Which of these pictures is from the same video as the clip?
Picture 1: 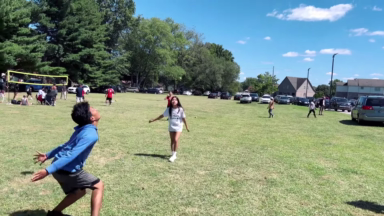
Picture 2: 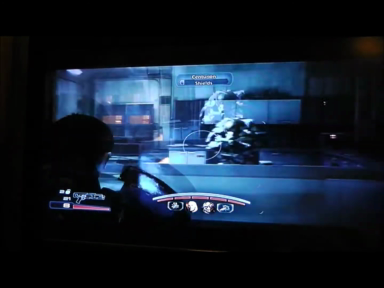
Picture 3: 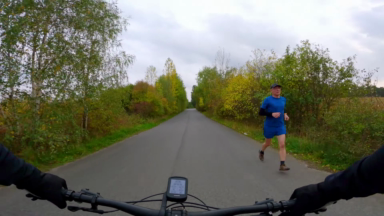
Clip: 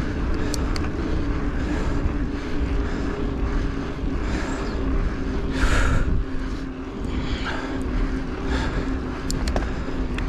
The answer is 3